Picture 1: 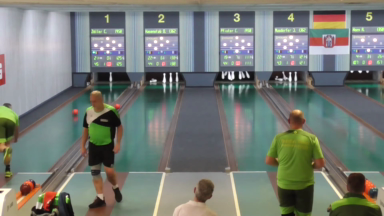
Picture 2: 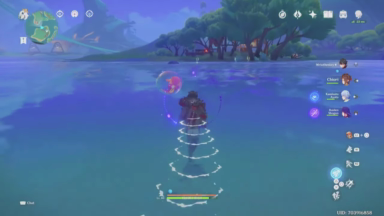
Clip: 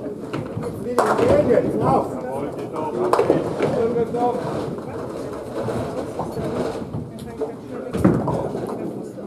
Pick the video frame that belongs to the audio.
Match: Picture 1